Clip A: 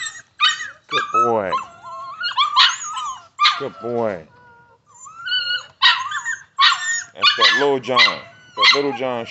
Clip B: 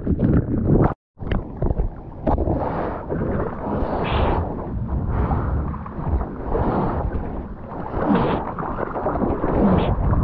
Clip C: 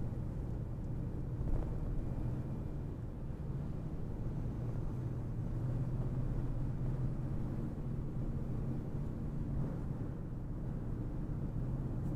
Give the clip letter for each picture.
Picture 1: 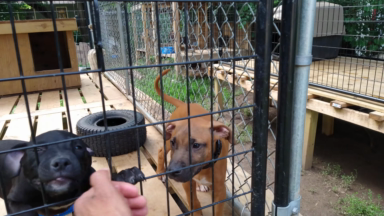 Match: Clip A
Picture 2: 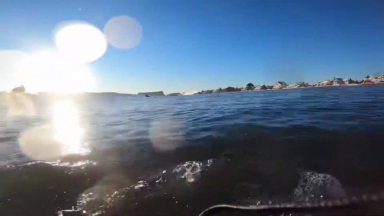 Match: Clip B